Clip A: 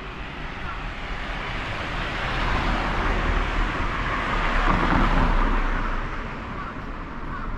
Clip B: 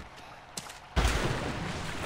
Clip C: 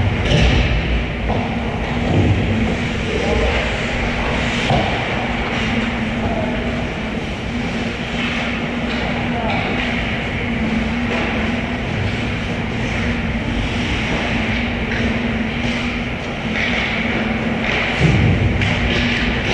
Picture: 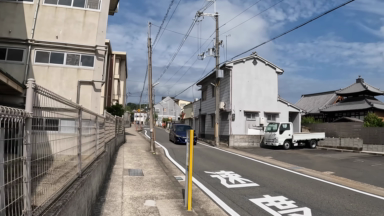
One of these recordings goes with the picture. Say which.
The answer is A